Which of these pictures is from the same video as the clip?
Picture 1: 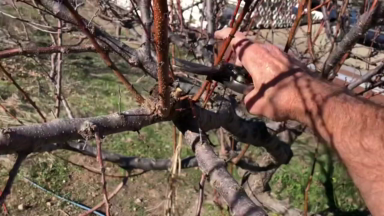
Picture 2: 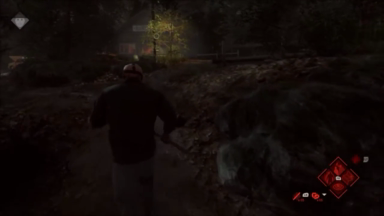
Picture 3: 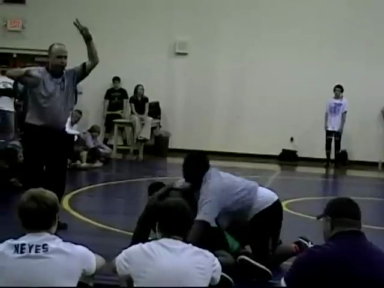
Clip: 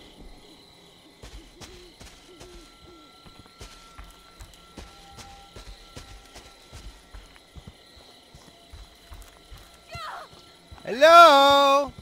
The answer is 2